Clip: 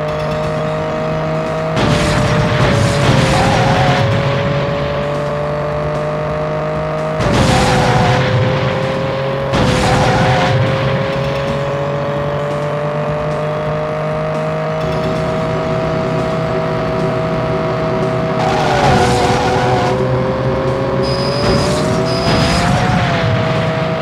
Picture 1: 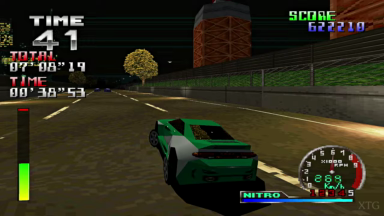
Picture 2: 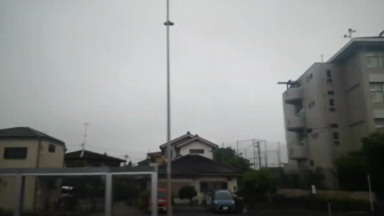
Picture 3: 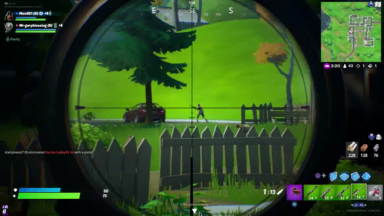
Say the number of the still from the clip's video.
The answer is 1